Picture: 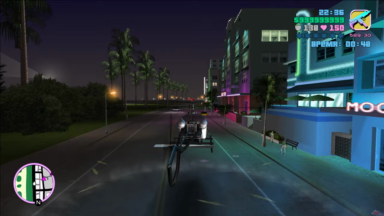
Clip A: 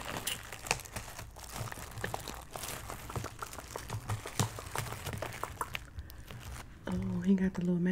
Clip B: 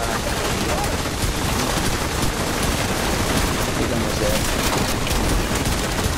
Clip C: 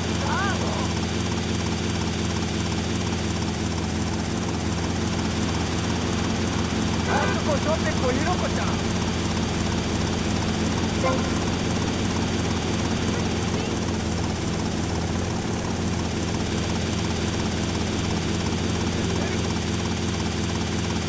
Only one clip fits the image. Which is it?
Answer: C